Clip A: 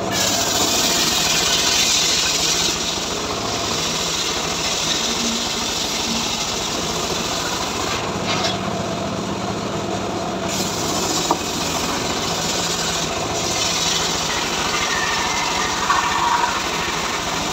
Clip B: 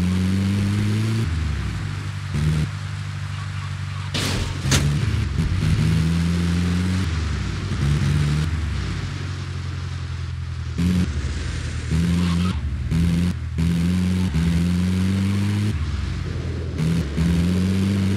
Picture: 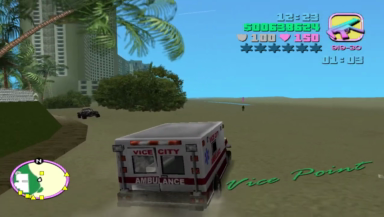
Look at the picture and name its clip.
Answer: B